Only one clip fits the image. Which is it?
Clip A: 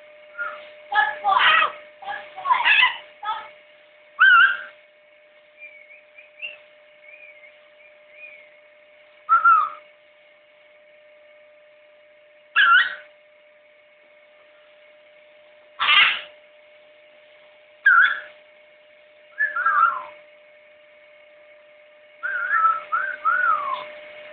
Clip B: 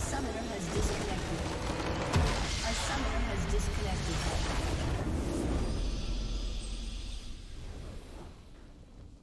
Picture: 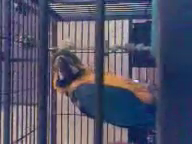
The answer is A